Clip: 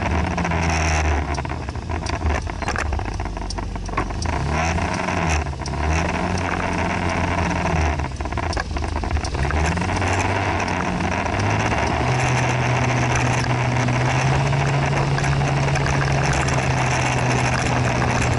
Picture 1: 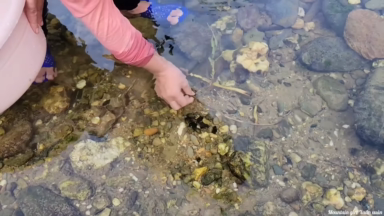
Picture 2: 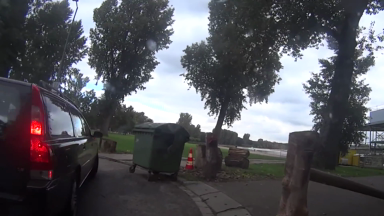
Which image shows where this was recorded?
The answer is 2